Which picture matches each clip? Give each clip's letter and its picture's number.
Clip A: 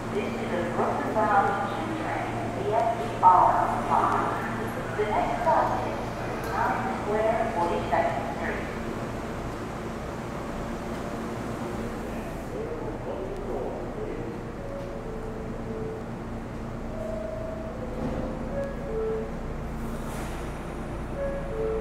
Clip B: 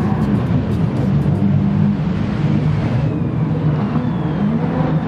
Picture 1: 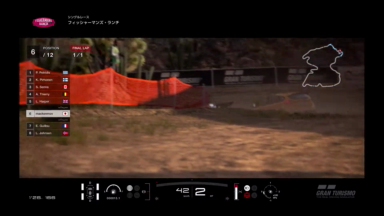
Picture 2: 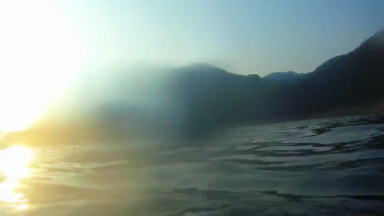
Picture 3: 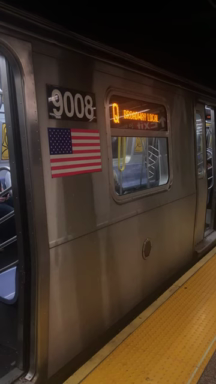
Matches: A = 3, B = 1